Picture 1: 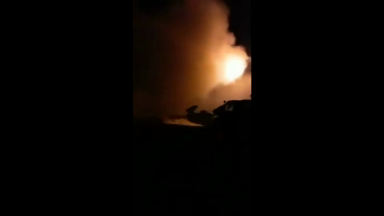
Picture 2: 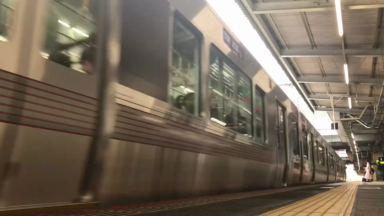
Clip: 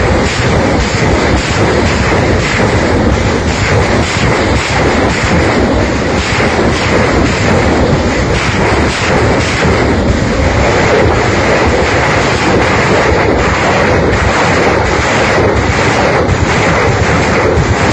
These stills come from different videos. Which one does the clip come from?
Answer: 1